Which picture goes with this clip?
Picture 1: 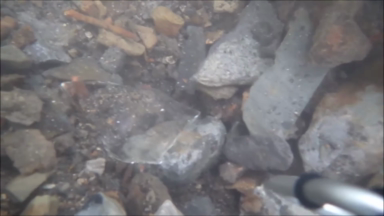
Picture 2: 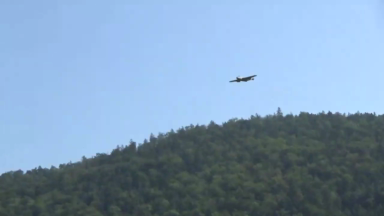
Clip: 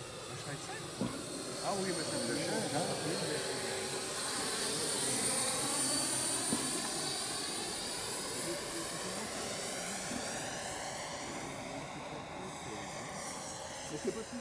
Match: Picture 2